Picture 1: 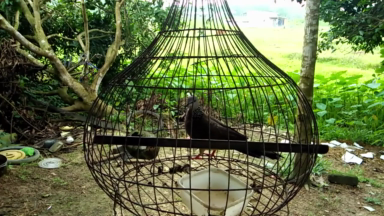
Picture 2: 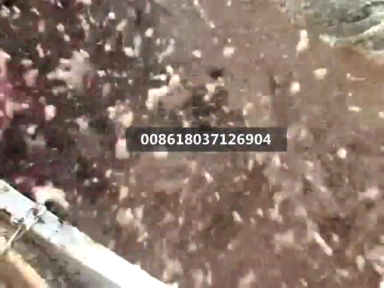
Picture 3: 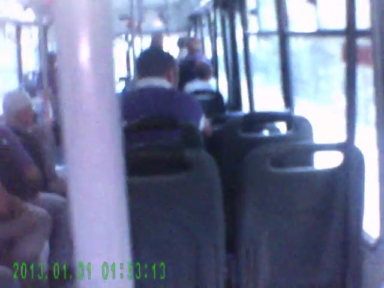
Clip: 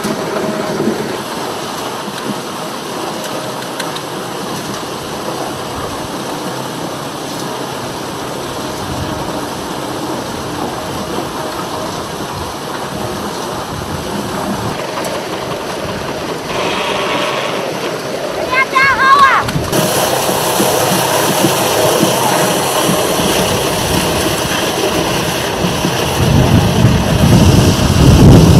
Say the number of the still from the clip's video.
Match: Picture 2